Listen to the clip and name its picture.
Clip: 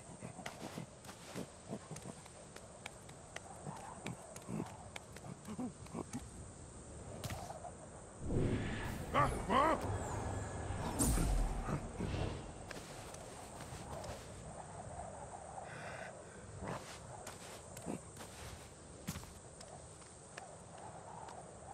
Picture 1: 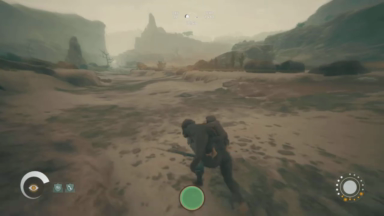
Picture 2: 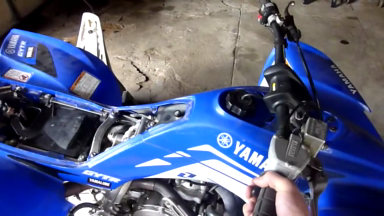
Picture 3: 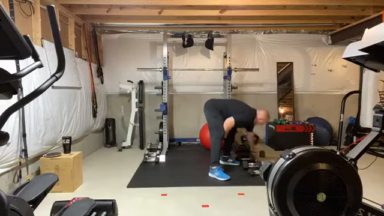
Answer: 1